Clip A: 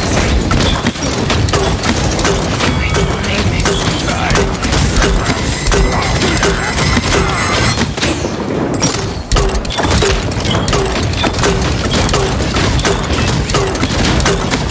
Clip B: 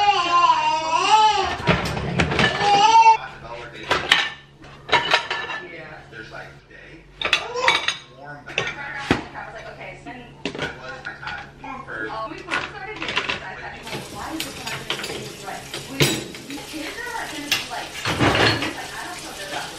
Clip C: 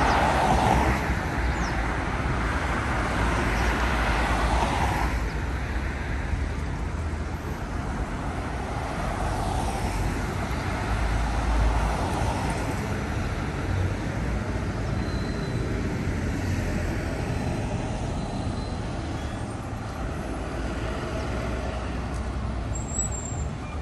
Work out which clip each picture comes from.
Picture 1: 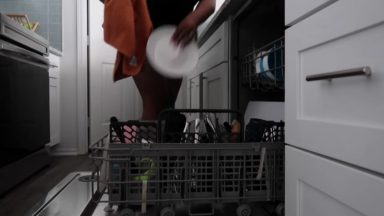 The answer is B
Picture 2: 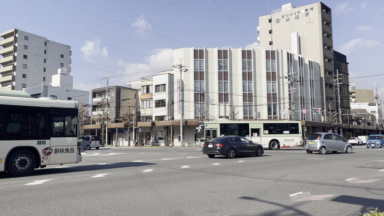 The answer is C